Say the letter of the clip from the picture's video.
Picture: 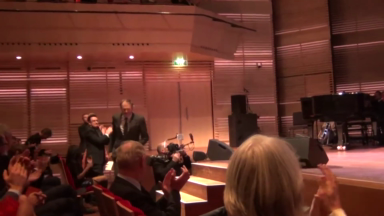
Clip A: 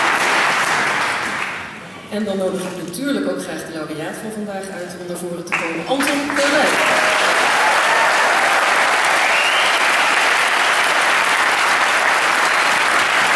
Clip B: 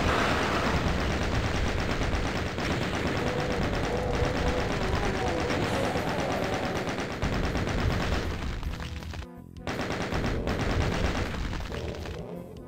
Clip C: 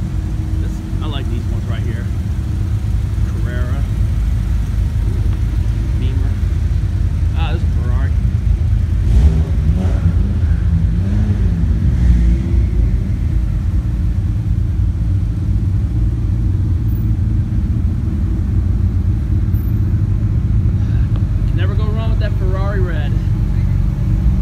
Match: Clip A